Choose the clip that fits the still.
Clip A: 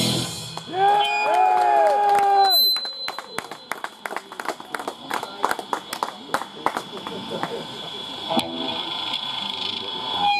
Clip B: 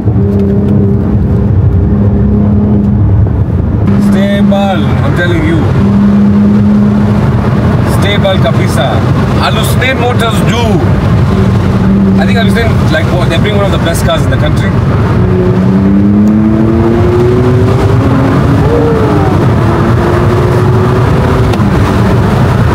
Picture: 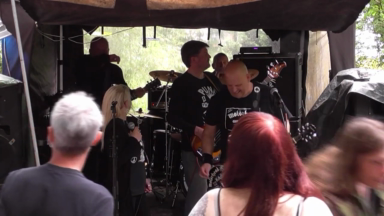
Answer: A